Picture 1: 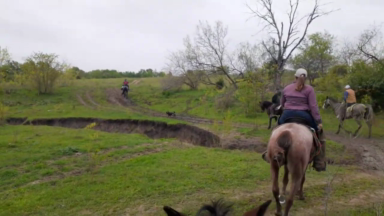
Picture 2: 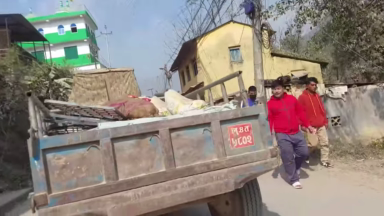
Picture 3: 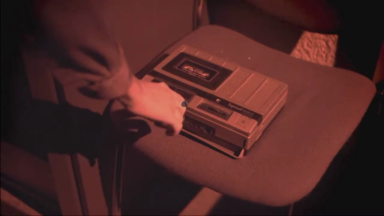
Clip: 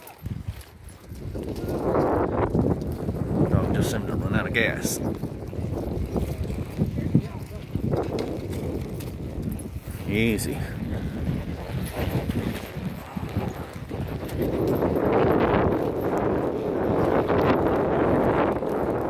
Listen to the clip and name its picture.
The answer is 1